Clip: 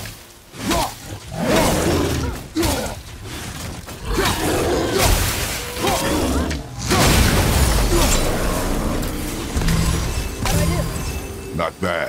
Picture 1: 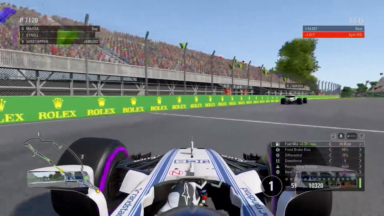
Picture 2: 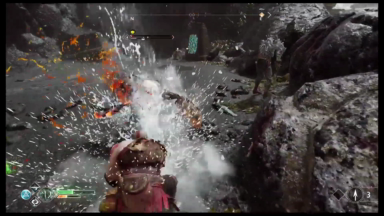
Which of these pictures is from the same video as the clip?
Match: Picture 2